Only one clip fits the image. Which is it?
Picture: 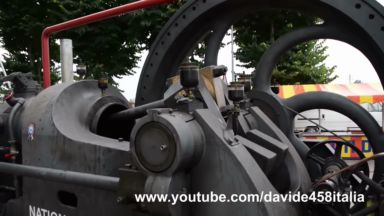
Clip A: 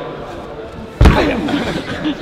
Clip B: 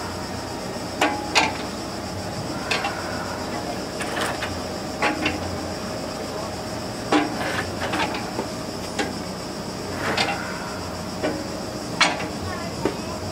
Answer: B